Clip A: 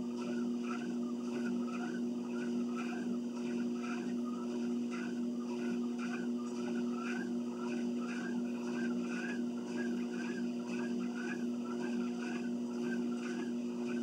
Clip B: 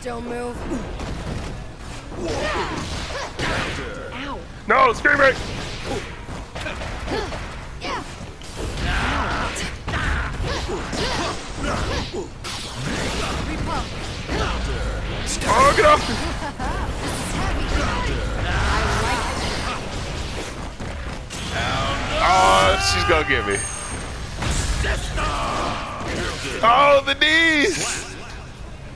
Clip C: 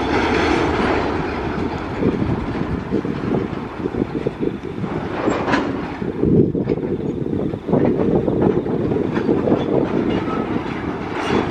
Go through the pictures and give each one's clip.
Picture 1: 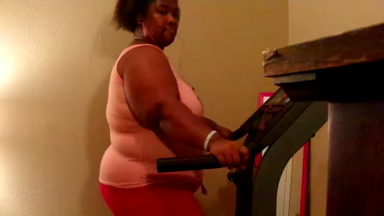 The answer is A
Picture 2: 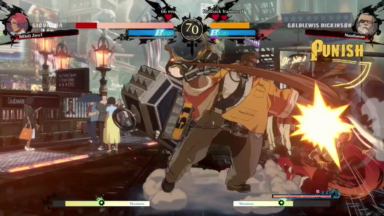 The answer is B